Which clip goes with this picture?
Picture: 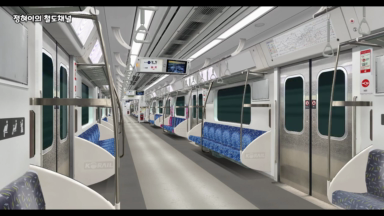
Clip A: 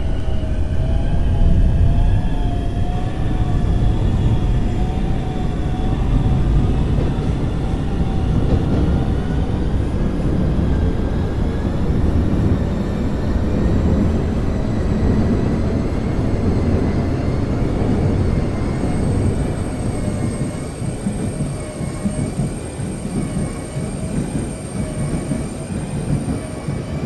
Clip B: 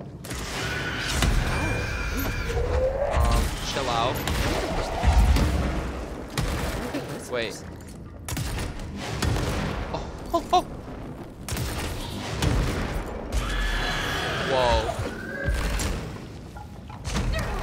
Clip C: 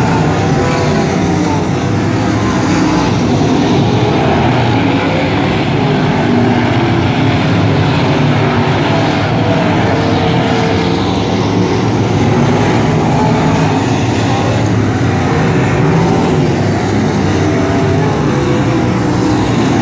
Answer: A